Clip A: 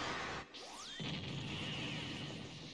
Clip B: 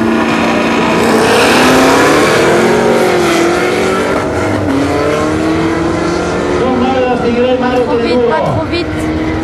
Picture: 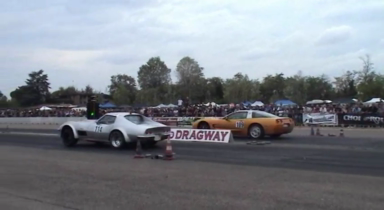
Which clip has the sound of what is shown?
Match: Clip B